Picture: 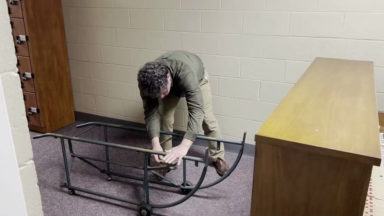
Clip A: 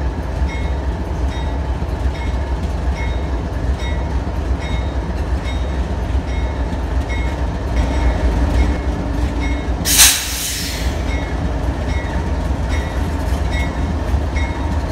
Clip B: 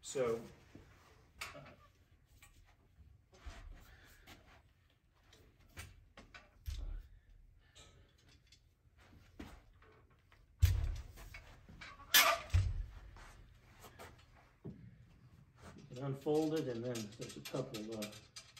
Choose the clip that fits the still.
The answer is B